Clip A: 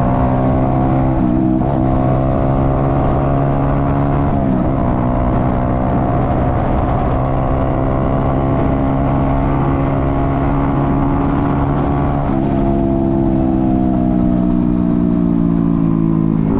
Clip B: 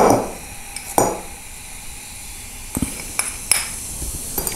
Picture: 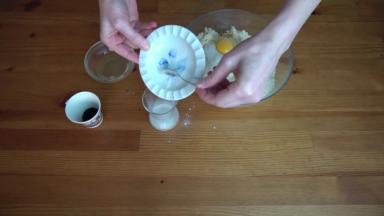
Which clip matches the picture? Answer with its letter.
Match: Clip B